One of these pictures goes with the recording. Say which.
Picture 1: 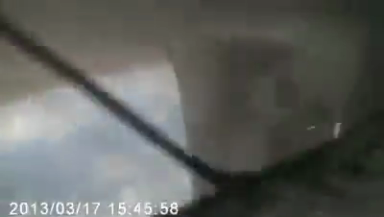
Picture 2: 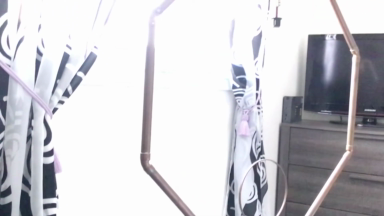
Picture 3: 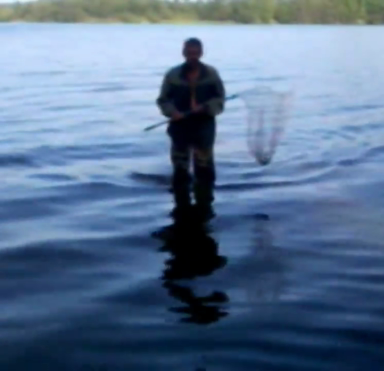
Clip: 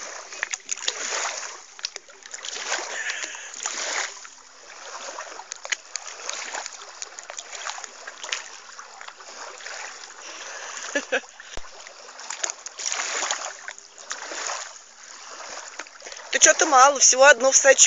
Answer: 3